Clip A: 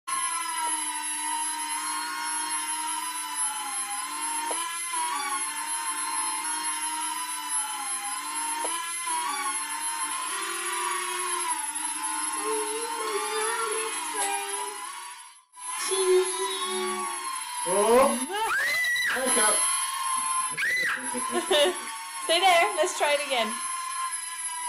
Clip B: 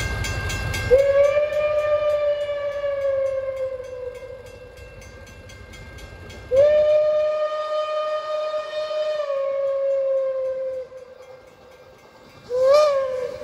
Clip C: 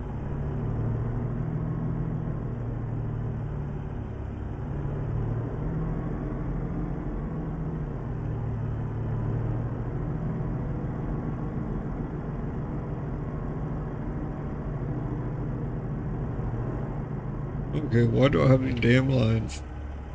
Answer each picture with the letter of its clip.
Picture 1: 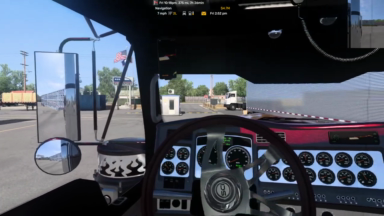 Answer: C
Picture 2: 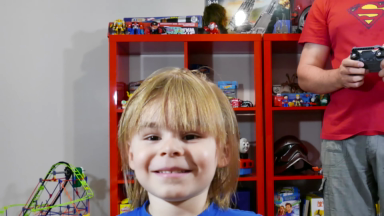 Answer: A